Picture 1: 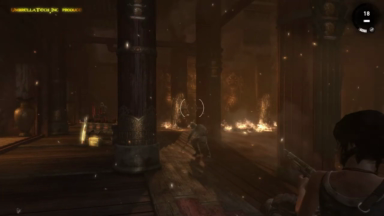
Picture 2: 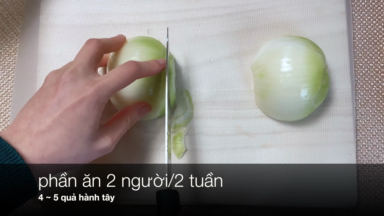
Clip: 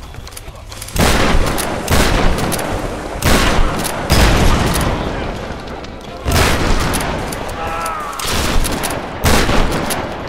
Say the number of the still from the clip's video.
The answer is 1